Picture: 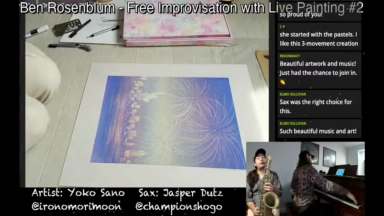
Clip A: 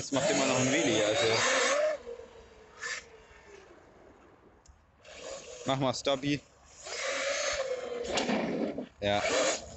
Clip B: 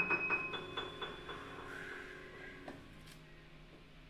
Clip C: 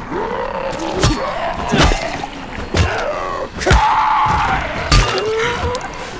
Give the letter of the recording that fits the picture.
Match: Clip B